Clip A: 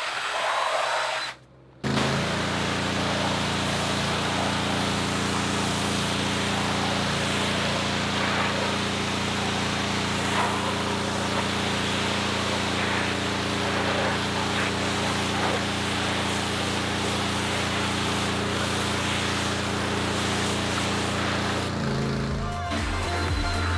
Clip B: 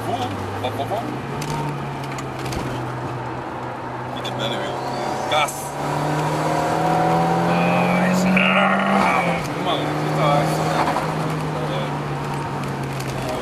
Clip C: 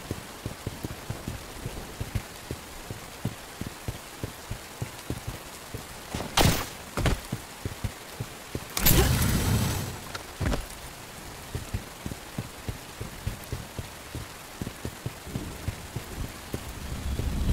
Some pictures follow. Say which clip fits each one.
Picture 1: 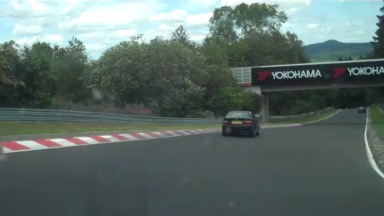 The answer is B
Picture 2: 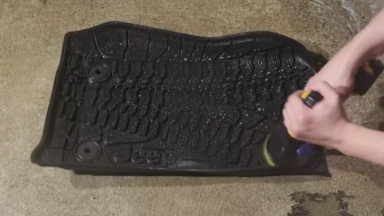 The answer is A